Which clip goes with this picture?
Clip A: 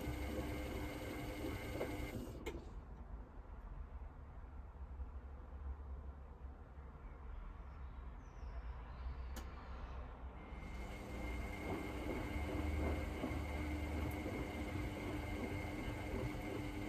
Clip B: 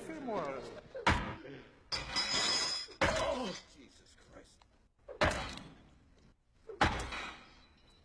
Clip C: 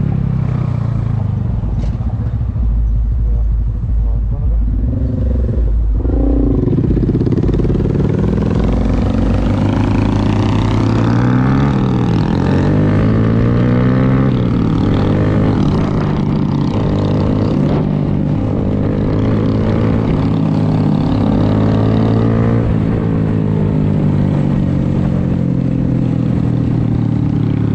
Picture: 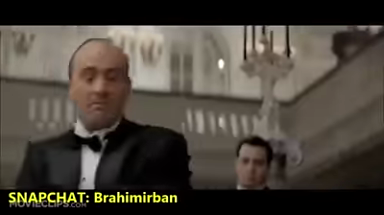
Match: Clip B